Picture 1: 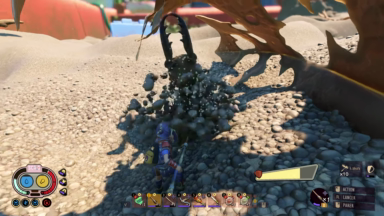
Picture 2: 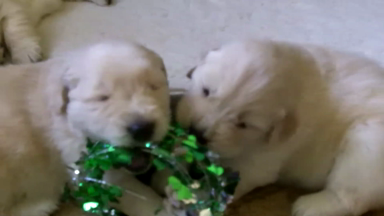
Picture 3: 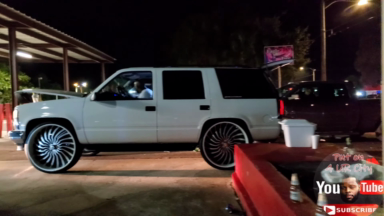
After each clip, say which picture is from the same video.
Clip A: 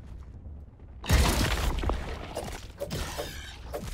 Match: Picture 1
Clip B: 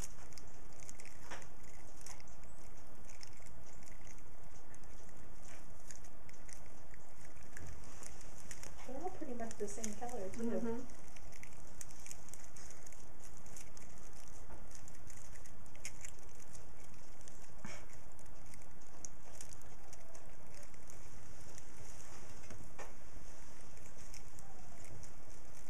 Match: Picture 2